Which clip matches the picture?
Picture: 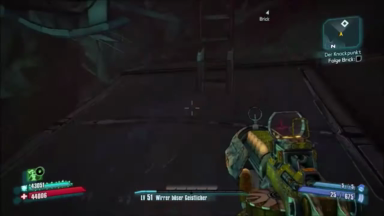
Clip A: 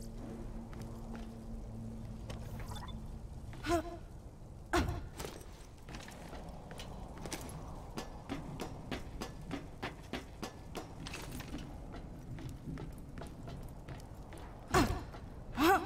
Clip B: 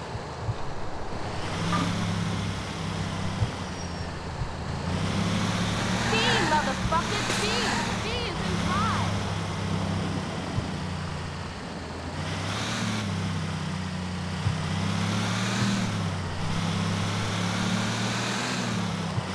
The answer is A